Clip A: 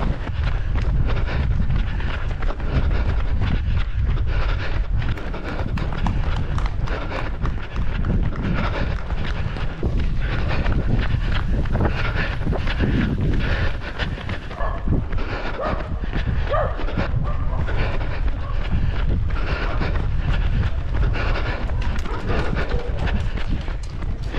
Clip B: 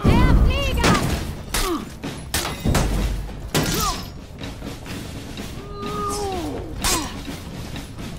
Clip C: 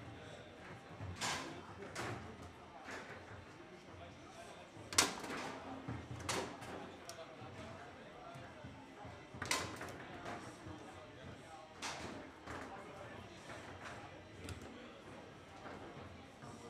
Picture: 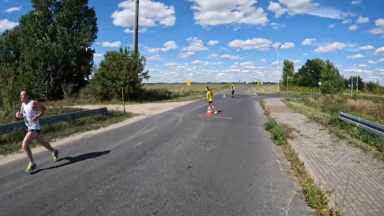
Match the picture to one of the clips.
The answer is A